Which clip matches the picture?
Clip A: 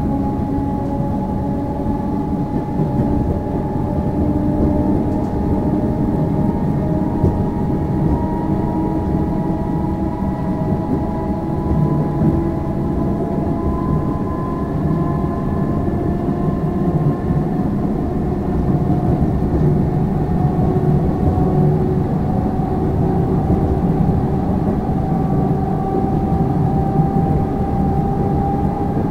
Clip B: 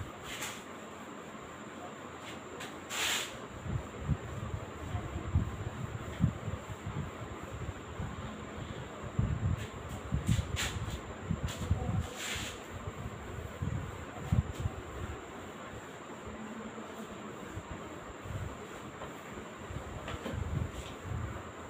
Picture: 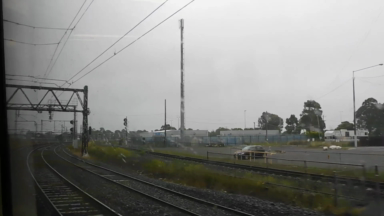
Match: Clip A